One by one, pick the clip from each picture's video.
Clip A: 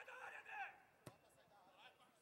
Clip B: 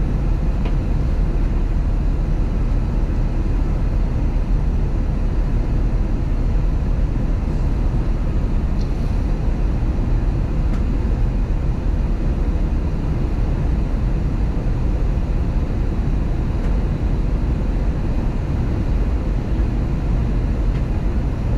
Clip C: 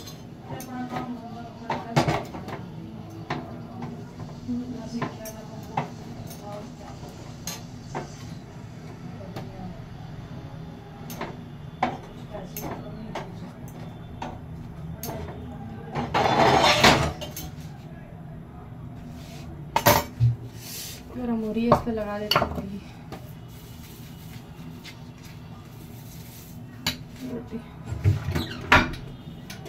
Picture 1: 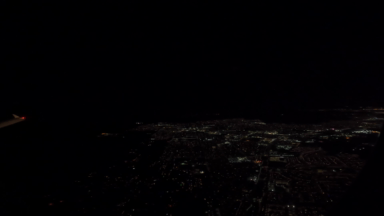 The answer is B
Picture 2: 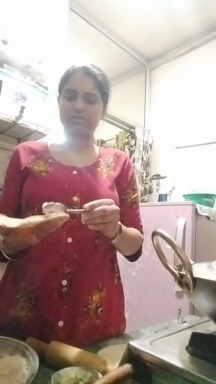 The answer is C